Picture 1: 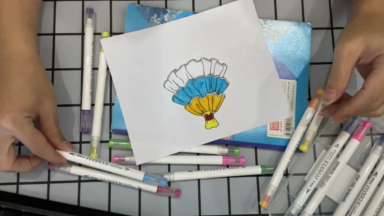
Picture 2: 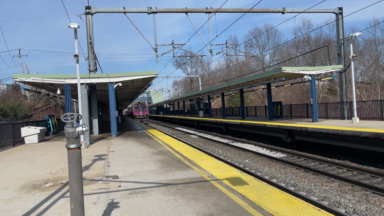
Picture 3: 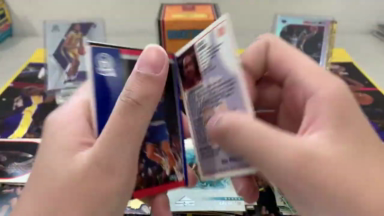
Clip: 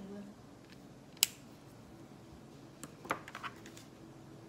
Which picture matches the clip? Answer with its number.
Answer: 1